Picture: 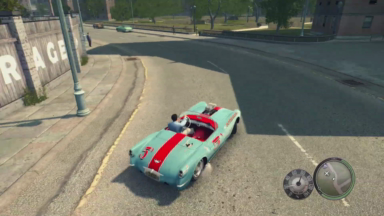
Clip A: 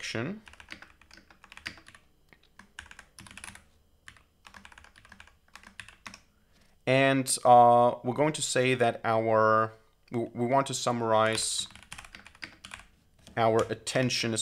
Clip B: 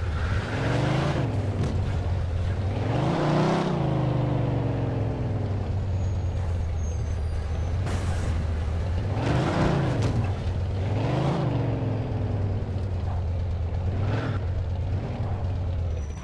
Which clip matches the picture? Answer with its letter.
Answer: B